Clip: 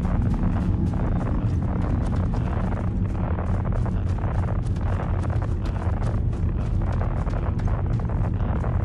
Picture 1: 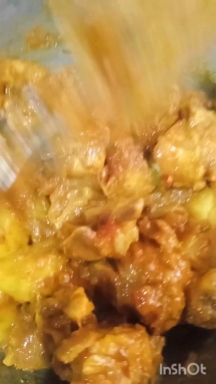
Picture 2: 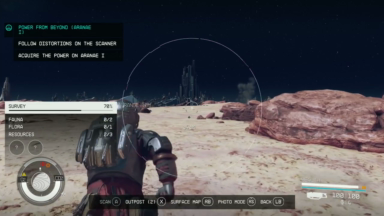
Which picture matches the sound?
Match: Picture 2